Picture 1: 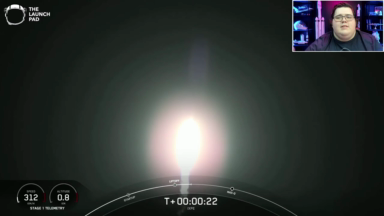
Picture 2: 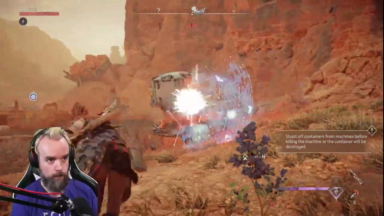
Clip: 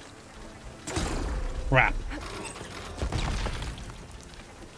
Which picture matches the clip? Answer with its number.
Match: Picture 2